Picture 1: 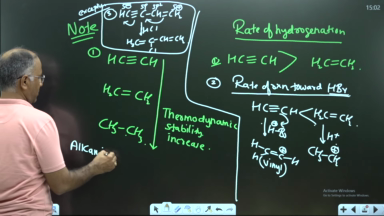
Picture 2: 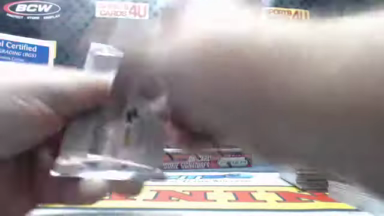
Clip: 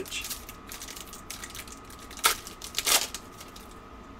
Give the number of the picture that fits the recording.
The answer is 2